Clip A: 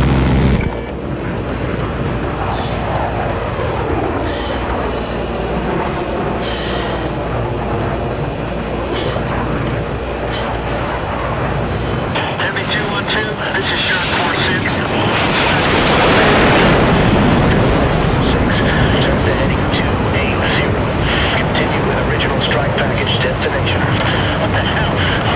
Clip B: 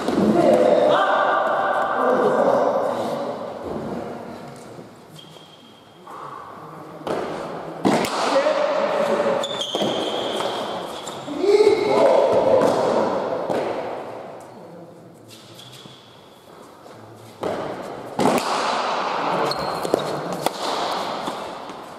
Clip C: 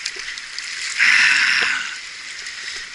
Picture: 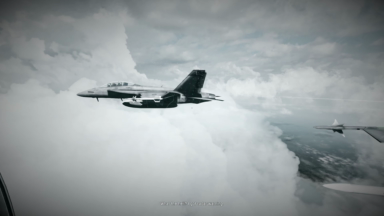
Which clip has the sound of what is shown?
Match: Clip A